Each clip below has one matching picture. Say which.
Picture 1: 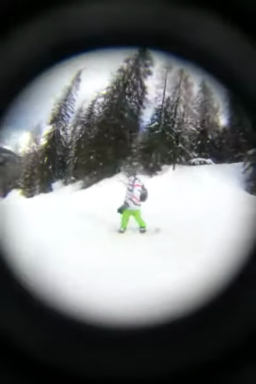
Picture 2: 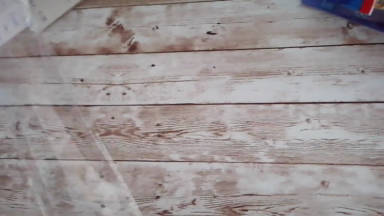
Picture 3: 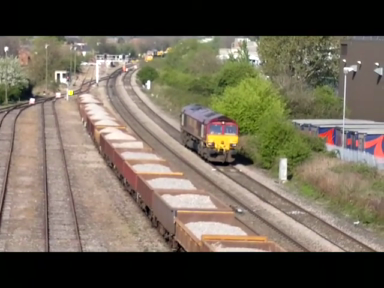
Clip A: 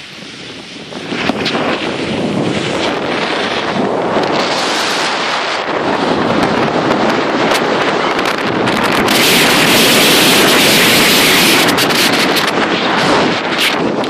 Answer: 1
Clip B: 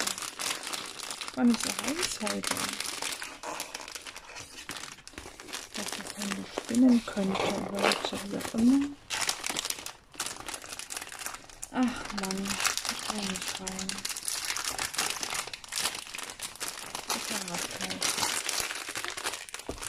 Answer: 2